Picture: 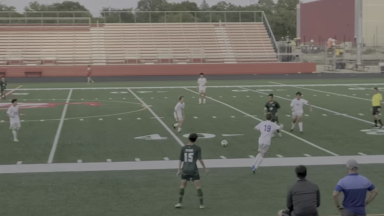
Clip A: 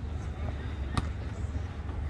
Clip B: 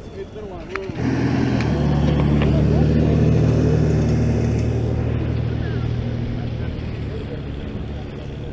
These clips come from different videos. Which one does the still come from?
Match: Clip A